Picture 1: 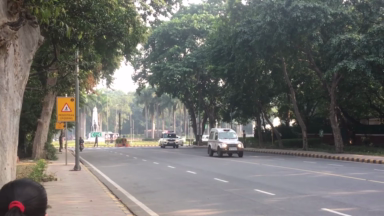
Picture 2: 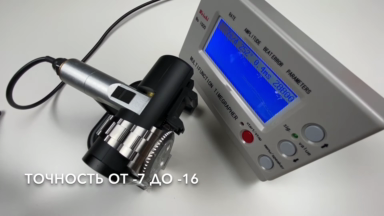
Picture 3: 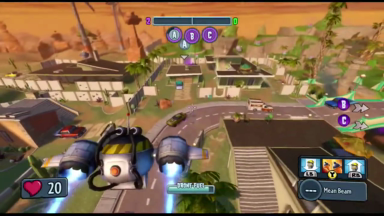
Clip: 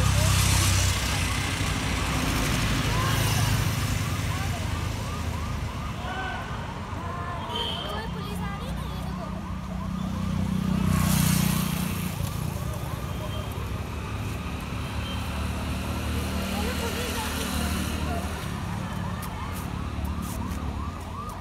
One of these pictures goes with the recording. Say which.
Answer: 1